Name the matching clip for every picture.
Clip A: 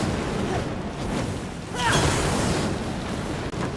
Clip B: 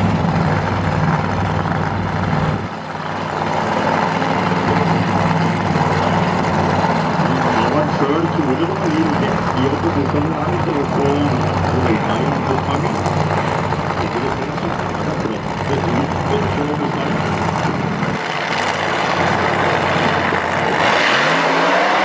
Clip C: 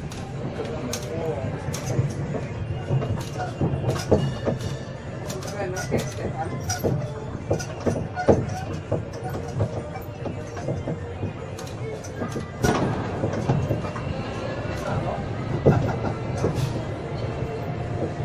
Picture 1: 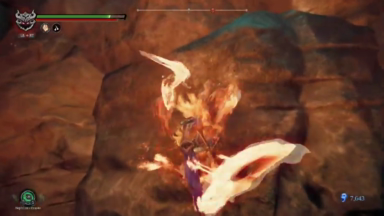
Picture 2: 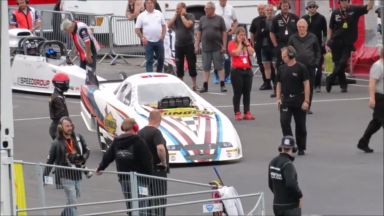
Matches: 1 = A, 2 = B